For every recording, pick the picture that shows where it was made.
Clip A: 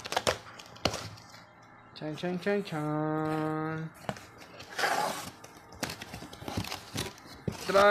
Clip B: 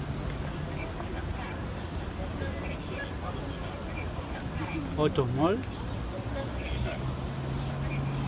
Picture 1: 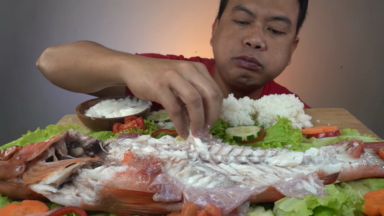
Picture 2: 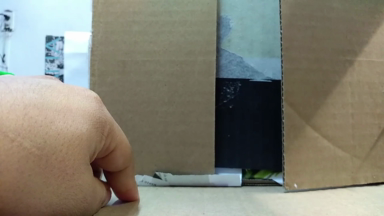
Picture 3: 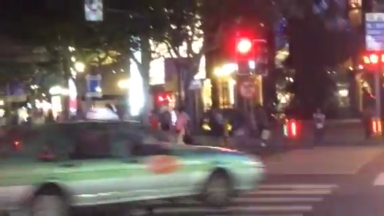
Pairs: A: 2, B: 3